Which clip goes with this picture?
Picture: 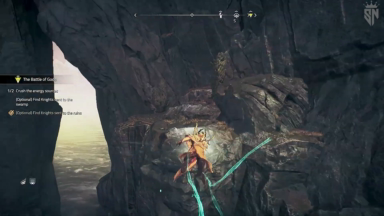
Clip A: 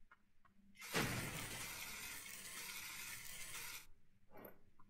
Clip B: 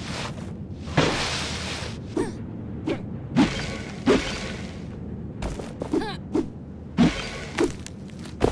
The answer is B